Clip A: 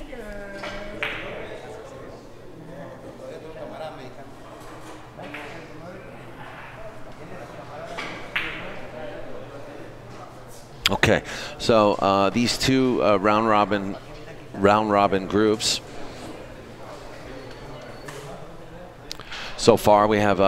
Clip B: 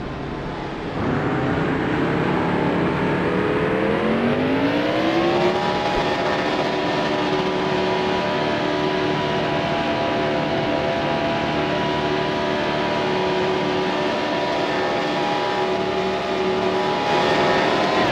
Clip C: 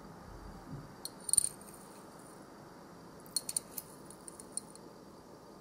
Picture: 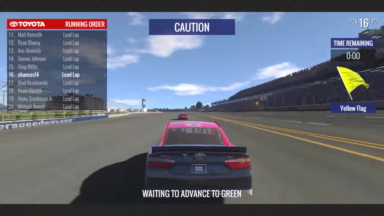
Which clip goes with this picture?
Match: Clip B